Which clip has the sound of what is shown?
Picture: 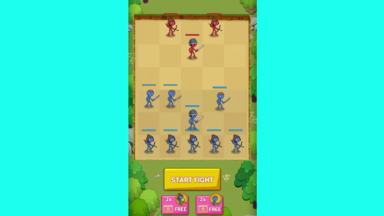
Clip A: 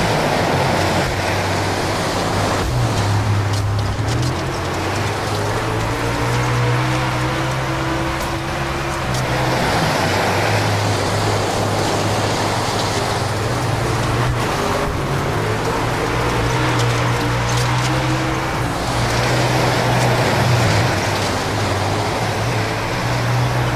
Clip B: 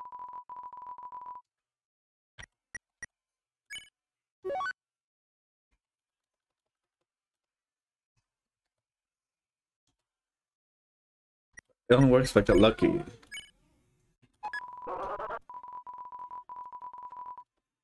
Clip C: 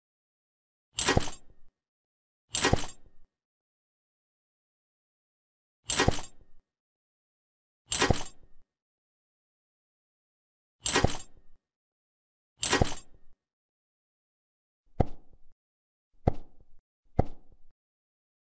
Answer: C